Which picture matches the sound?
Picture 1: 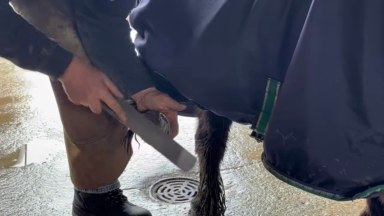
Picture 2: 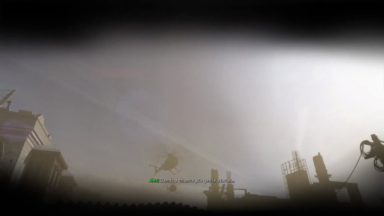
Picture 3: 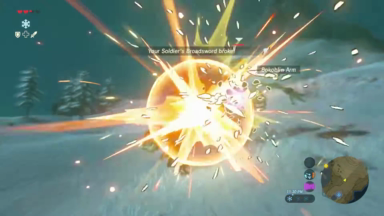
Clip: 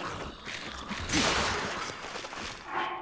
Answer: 3